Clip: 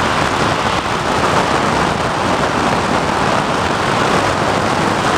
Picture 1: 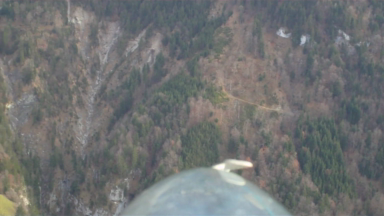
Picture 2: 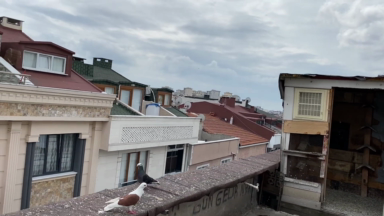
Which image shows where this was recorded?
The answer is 1